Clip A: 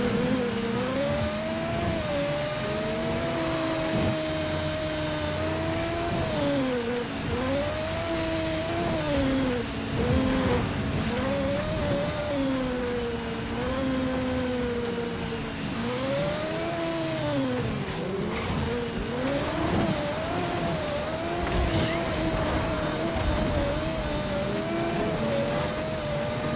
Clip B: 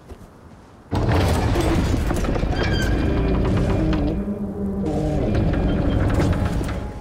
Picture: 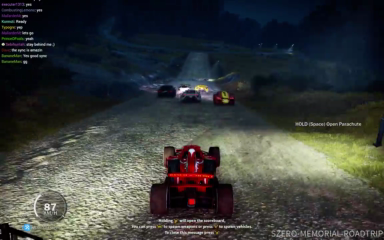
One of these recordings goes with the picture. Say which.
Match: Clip A